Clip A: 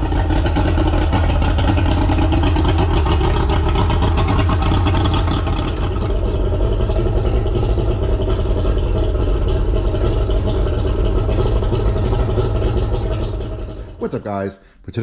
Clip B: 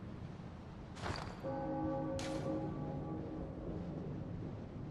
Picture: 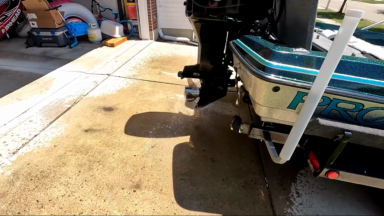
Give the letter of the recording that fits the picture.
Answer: A